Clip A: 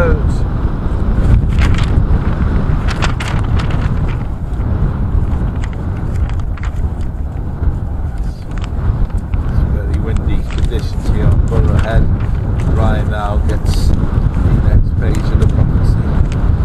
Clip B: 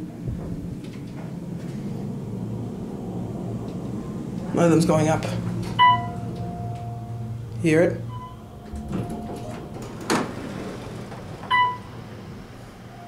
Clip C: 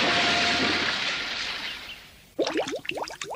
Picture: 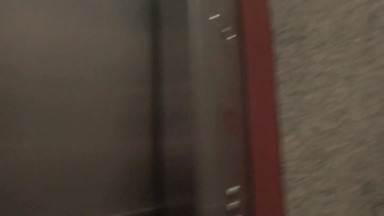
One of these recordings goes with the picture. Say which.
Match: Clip B